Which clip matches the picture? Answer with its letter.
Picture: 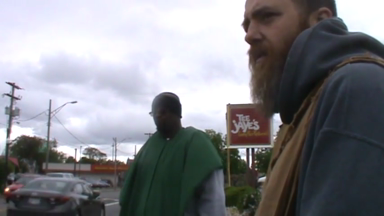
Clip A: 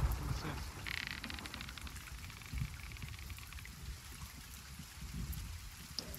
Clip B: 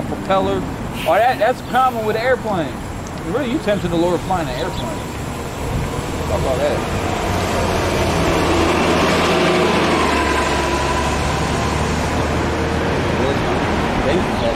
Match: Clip B